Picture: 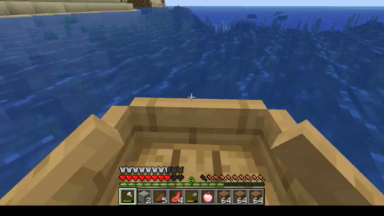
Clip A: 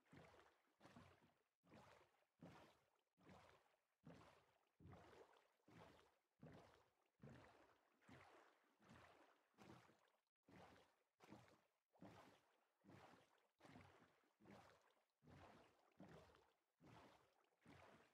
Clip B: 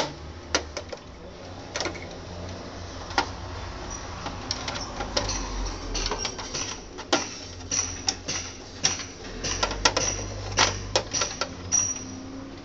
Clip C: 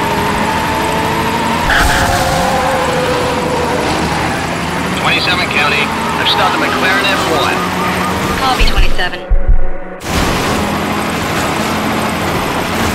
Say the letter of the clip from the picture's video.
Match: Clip A